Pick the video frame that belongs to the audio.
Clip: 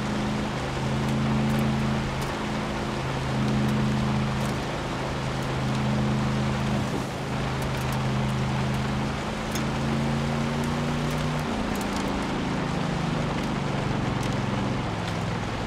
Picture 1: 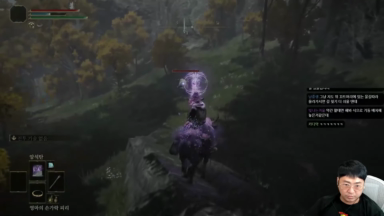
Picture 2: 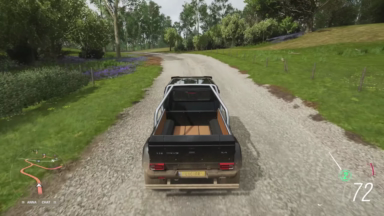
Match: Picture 2